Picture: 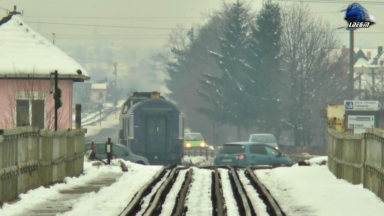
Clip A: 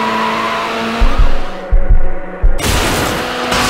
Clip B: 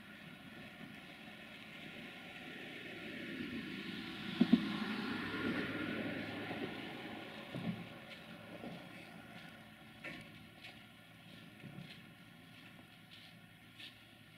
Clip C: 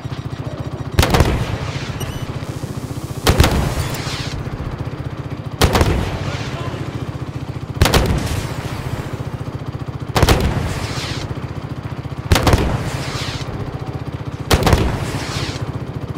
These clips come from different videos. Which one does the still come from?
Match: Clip B